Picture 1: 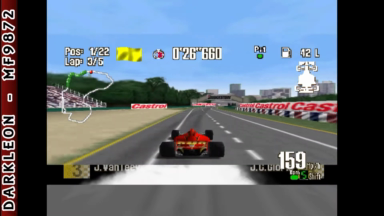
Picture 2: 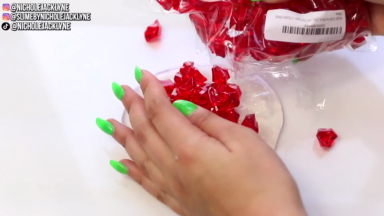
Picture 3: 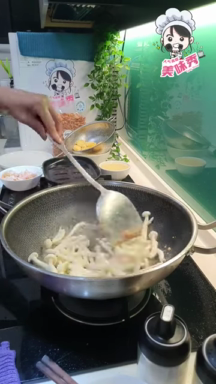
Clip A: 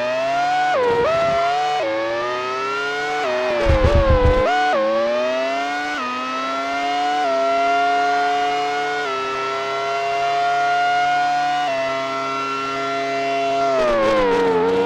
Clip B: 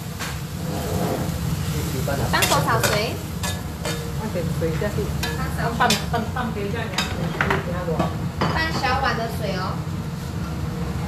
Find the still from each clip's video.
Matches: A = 1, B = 3